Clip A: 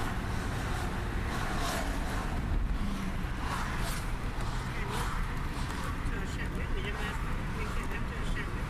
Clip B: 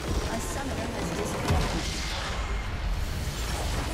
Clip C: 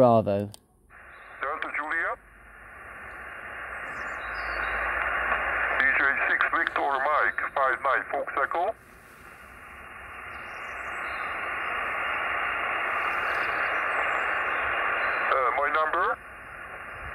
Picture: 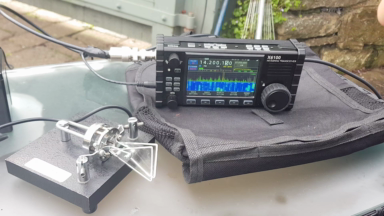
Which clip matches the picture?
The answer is C